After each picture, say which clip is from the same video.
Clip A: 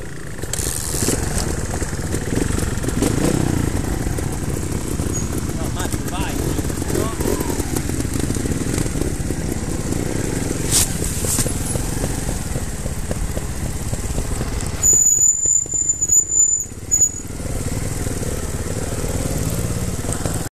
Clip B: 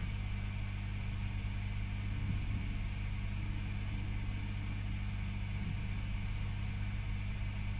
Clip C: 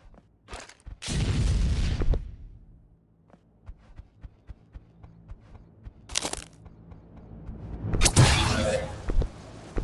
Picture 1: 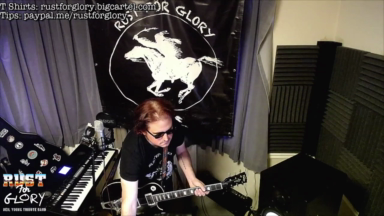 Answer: B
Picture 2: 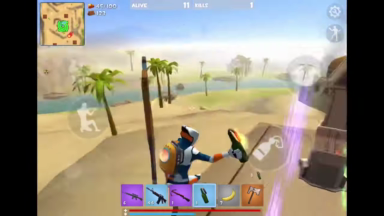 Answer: C